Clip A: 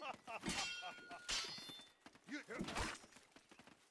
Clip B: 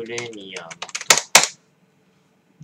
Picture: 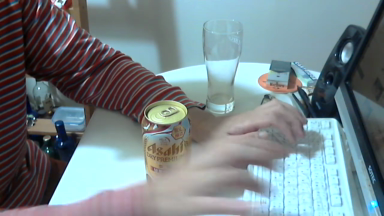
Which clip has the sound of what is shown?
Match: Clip B